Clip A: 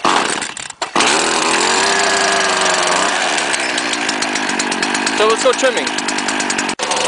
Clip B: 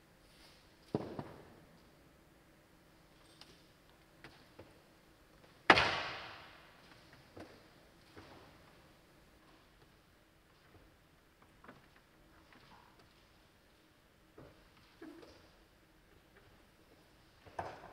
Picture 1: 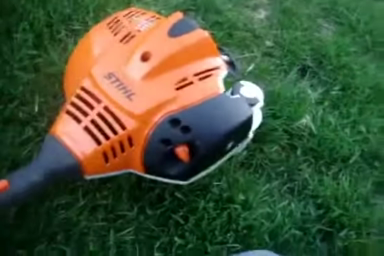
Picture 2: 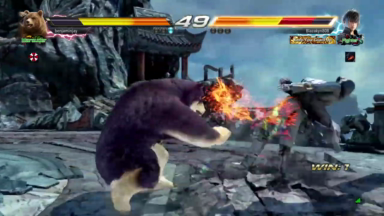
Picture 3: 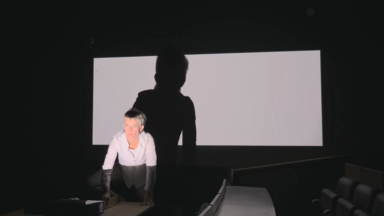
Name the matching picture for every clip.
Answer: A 1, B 3